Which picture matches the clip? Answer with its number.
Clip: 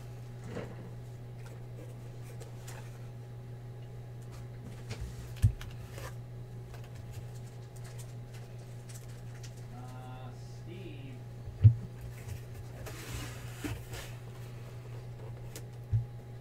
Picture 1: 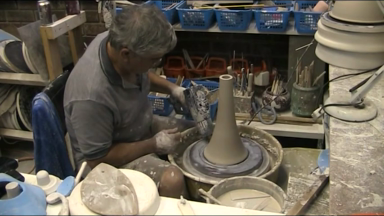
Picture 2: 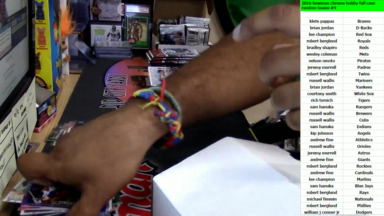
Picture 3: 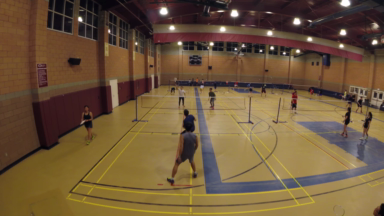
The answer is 2